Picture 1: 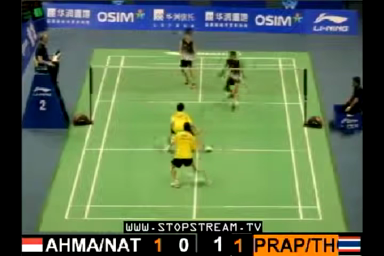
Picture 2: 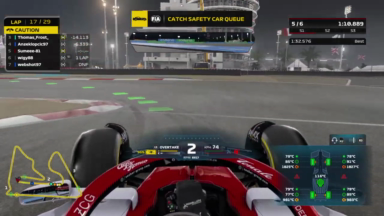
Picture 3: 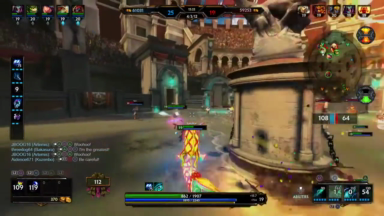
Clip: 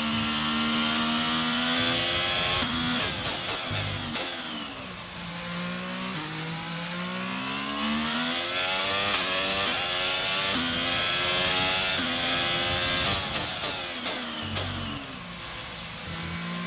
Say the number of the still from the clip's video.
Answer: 2